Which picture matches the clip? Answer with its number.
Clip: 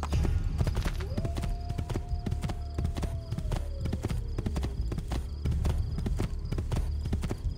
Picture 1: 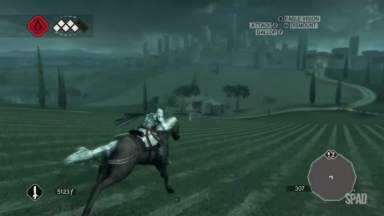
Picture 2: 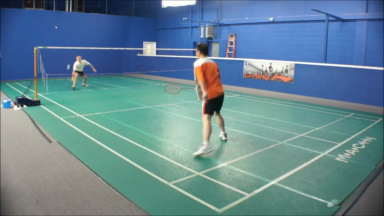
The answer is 1